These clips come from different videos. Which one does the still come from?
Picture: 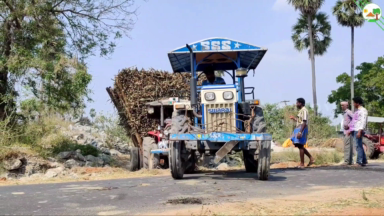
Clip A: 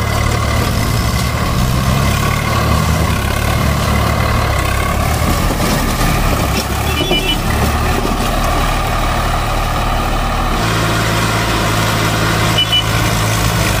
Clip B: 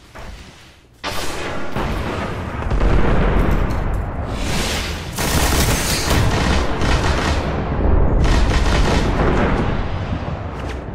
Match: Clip A